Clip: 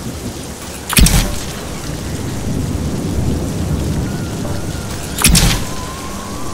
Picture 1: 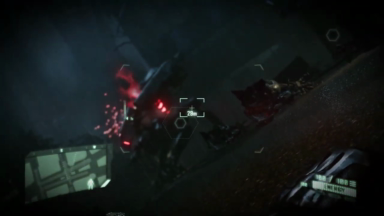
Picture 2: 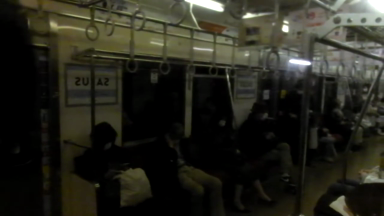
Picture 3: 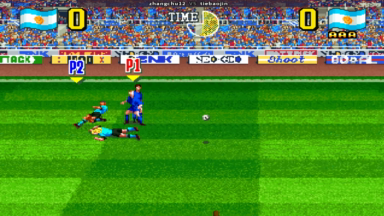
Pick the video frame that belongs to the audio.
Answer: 1